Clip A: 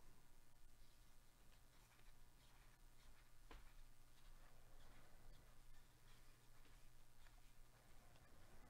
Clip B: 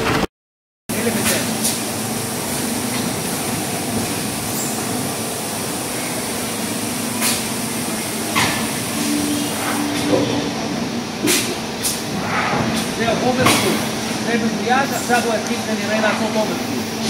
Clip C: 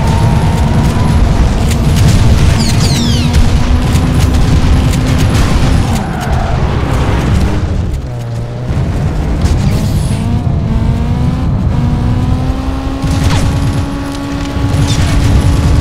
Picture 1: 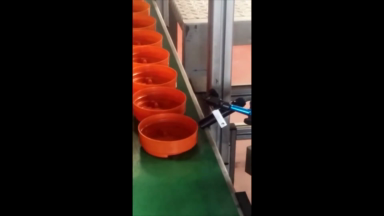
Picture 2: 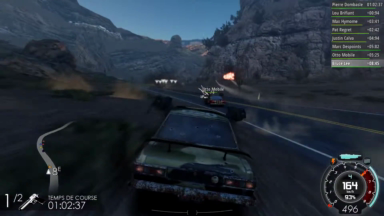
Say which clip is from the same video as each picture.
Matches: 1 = B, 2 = C